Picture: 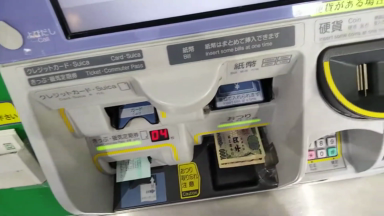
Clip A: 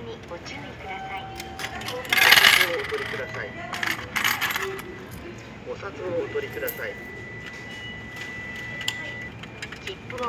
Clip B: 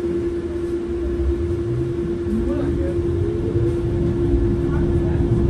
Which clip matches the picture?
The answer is A